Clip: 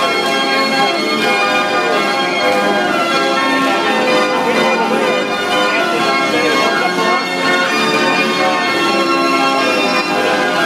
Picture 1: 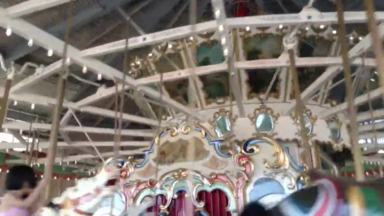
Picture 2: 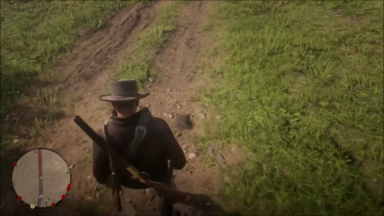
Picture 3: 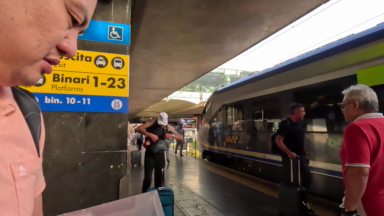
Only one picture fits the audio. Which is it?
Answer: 1